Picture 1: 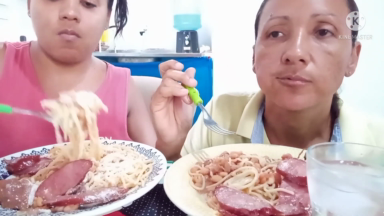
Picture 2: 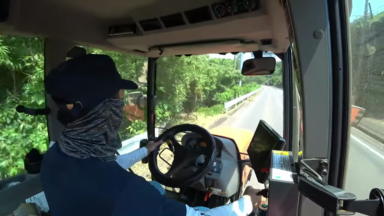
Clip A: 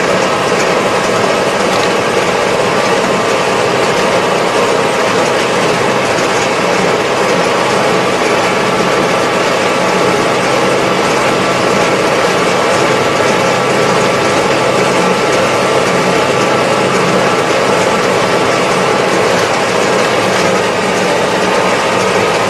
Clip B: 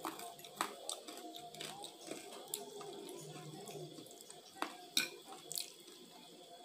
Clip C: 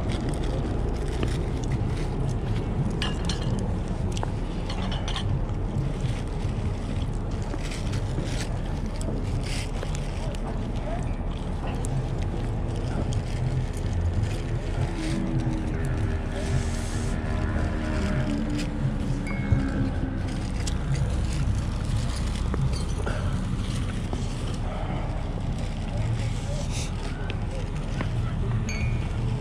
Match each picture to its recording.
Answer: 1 B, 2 A